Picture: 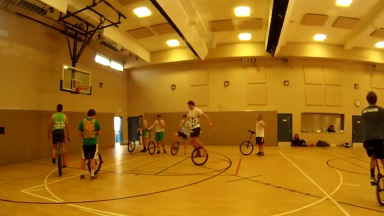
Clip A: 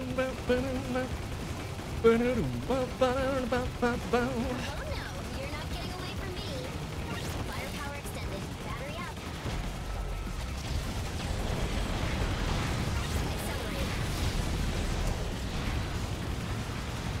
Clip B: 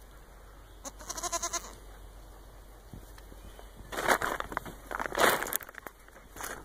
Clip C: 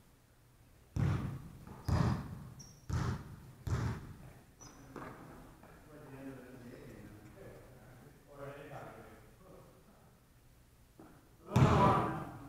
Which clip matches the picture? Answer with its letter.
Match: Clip C